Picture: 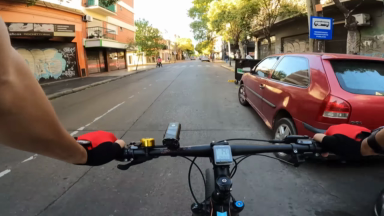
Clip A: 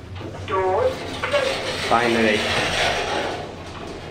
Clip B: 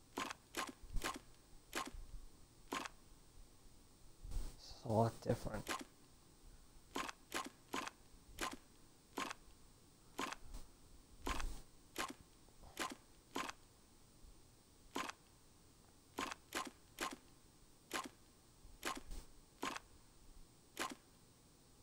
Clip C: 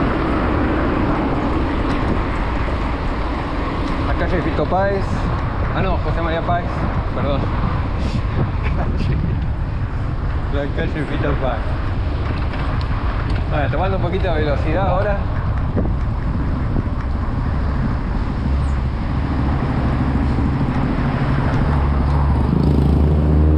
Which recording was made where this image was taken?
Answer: C